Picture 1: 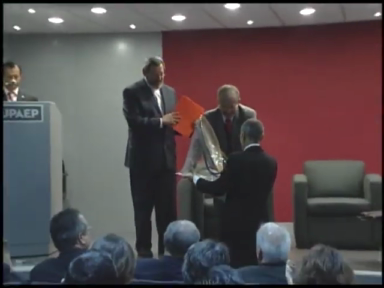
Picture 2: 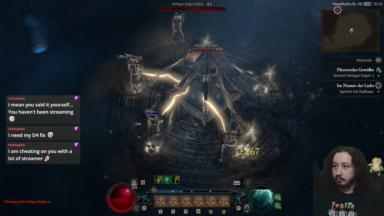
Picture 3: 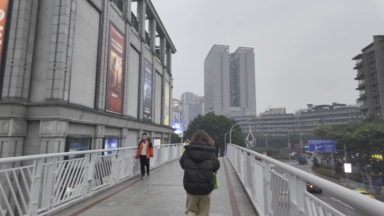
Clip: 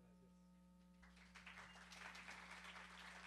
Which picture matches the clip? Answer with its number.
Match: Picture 1